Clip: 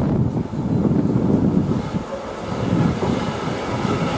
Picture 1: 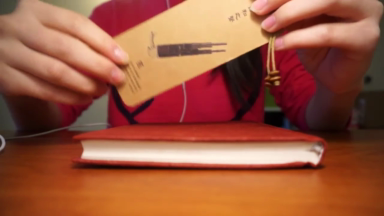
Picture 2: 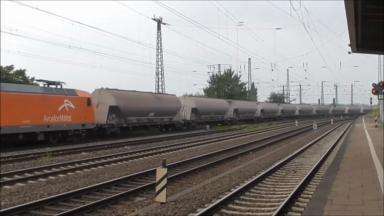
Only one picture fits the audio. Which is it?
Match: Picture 2